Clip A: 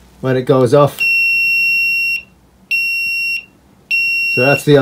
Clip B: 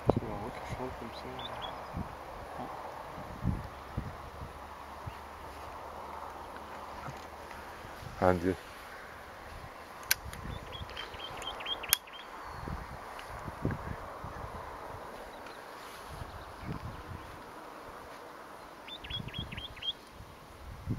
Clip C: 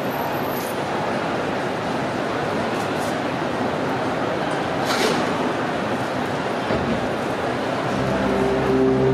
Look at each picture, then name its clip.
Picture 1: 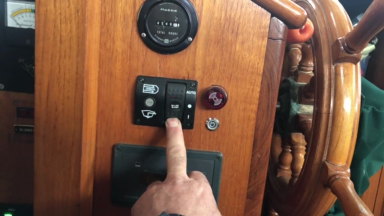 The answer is A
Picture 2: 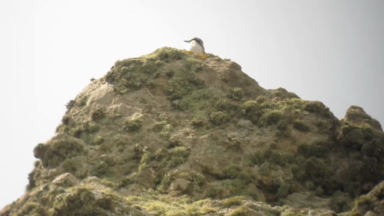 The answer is B